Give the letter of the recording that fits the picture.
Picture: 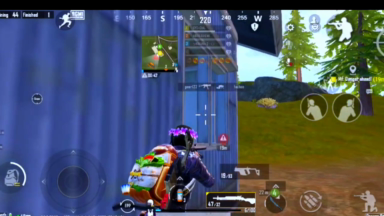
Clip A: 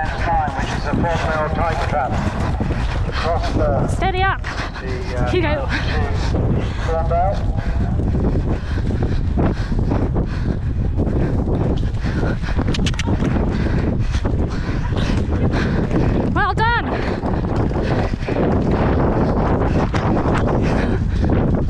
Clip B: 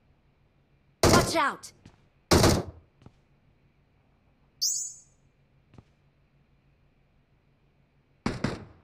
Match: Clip B